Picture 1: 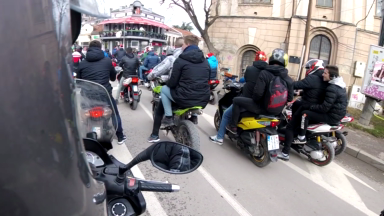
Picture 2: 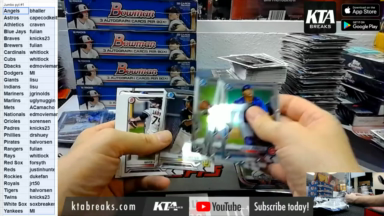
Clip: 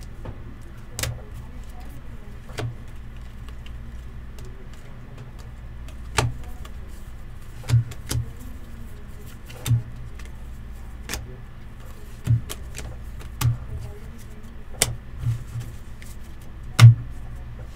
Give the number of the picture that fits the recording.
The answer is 2